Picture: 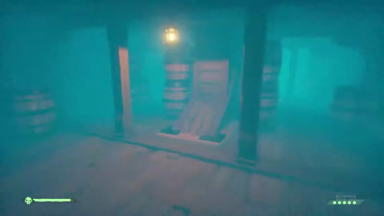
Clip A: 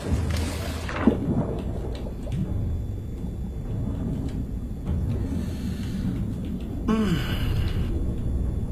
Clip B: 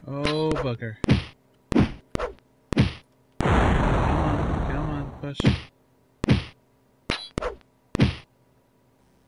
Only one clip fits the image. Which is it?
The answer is A